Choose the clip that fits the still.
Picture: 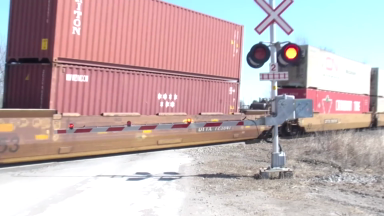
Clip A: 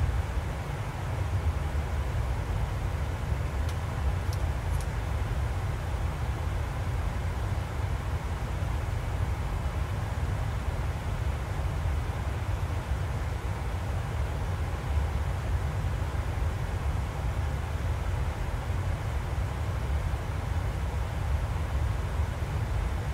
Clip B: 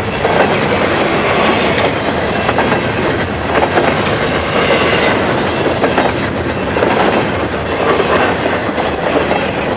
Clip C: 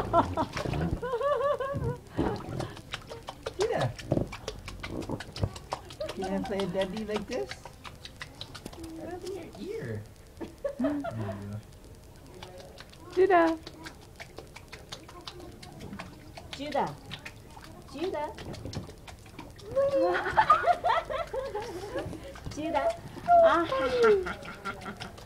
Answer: B